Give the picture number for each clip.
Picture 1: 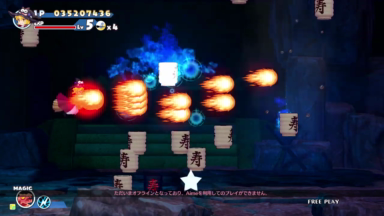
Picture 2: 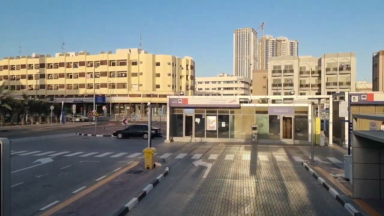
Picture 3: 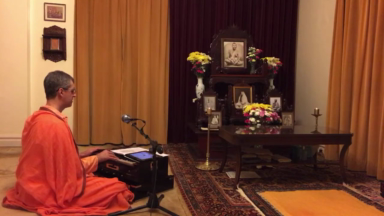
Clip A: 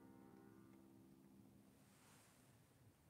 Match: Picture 3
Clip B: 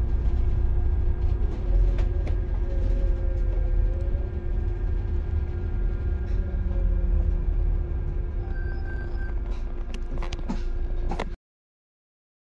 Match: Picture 2